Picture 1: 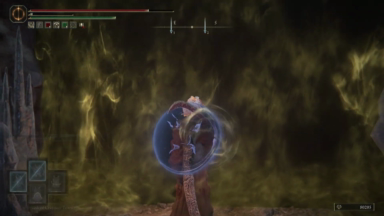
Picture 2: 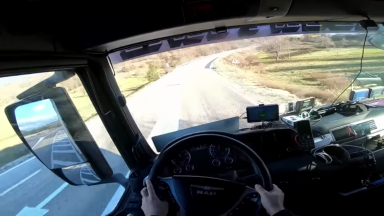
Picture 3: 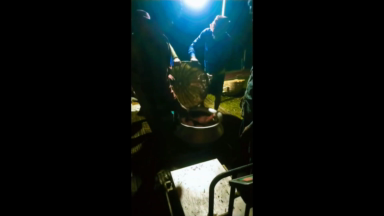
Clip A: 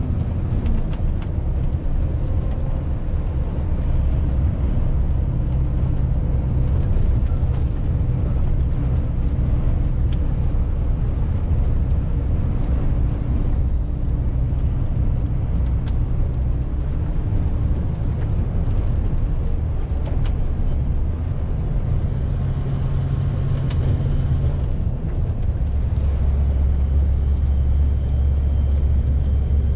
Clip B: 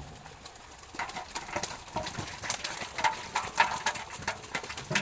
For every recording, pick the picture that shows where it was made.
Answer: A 2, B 3